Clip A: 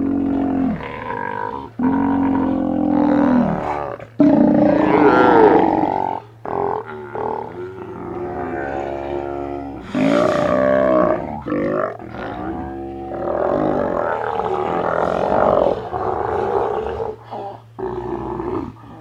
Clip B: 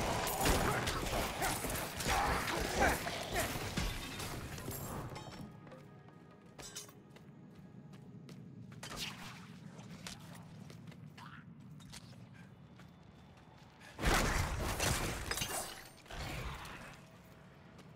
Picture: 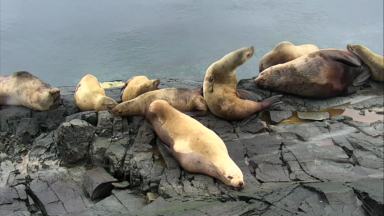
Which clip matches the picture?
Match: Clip A